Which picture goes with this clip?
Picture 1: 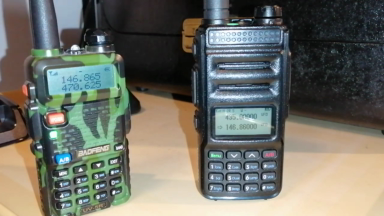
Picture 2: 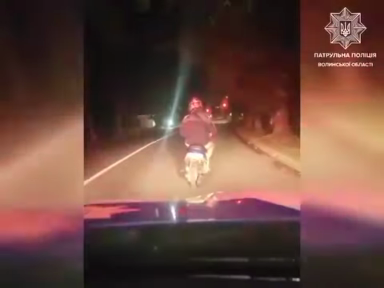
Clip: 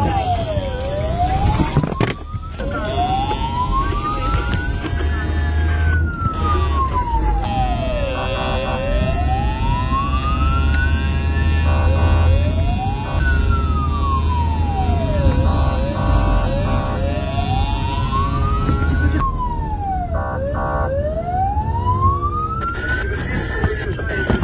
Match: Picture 2